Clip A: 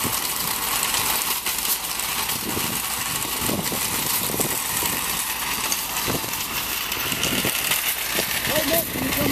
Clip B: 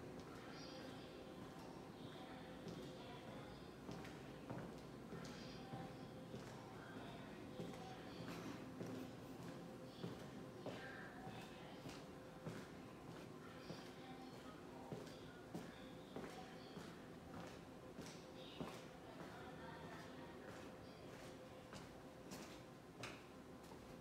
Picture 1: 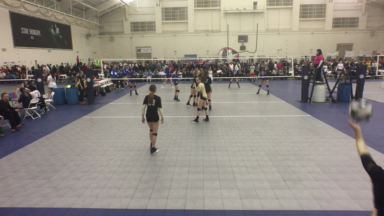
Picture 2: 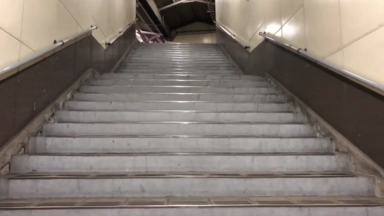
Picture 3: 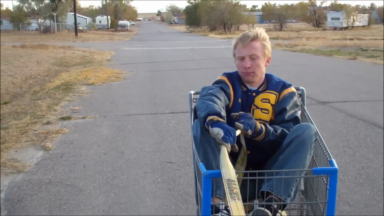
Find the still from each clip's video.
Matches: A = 3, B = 2